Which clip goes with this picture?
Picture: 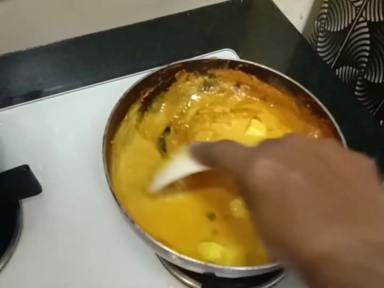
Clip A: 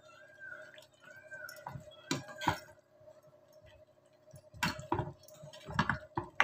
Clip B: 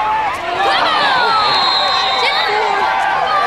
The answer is A